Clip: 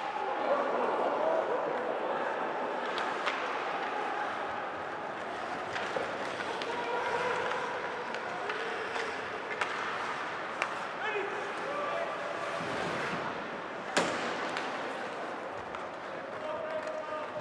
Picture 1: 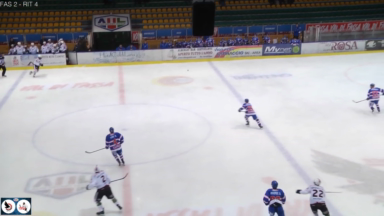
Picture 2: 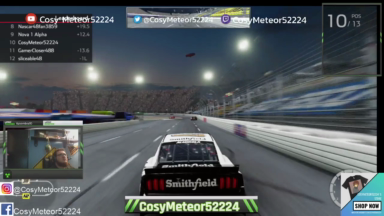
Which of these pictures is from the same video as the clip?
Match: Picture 1